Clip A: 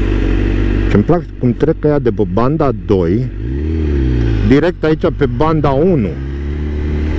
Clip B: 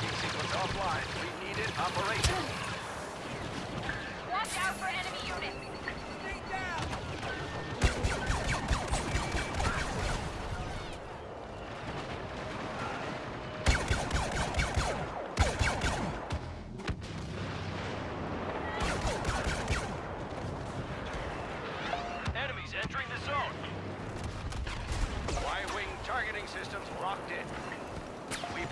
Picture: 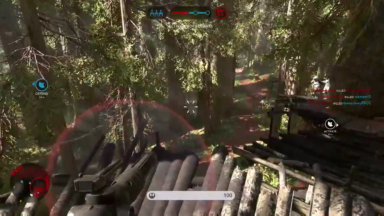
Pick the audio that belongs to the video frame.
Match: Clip B